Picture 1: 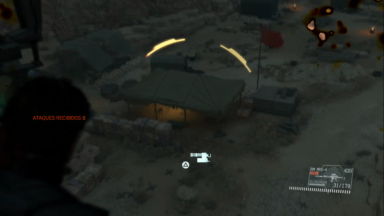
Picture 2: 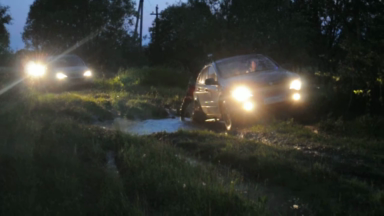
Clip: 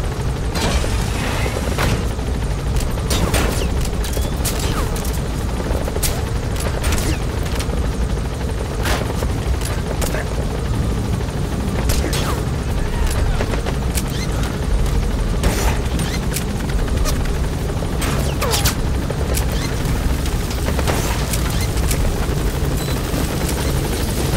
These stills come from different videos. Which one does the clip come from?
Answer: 1